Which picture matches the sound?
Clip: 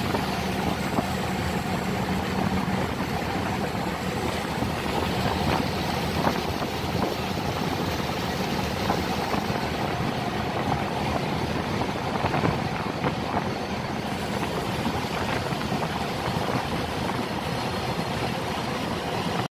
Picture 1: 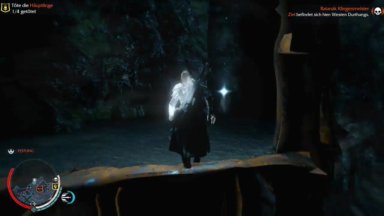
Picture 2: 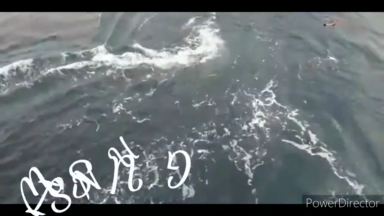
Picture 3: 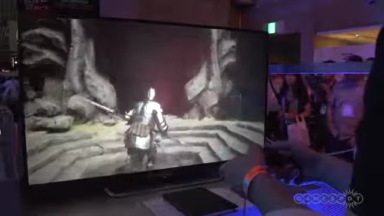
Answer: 2